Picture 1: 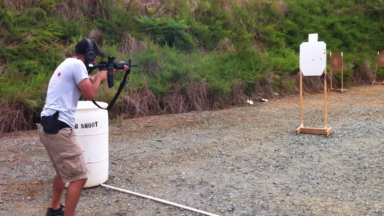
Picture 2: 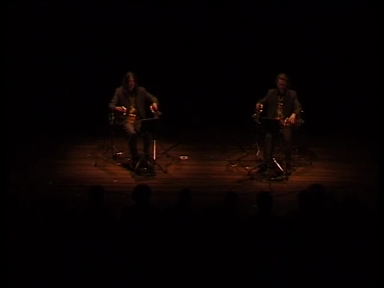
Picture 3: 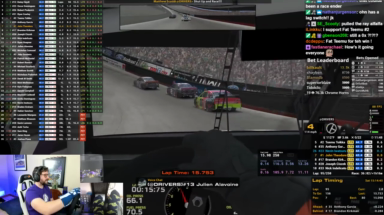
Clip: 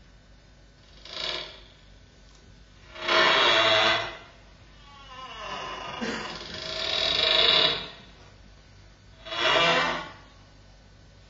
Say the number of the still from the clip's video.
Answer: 2